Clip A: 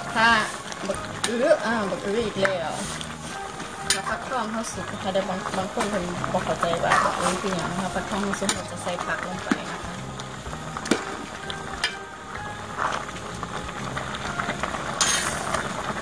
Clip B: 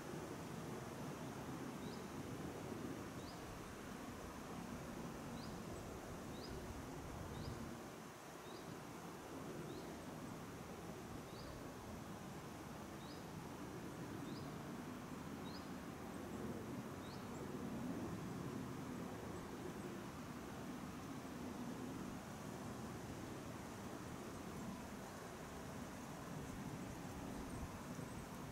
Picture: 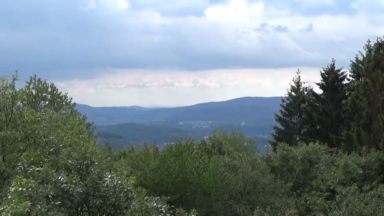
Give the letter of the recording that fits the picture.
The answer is B